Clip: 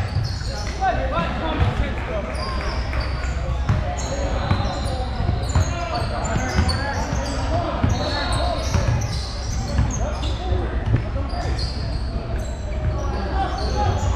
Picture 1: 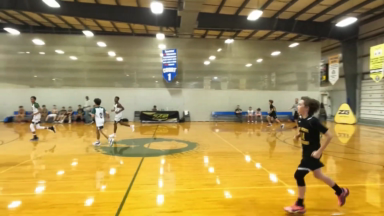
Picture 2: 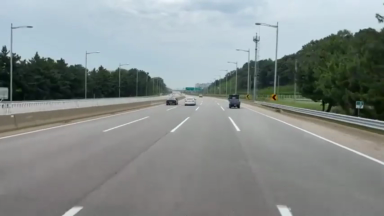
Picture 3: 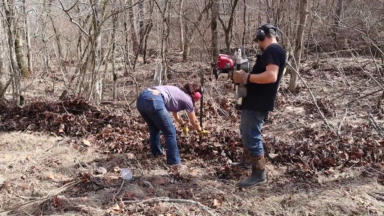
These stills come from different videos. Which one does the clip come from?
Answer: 1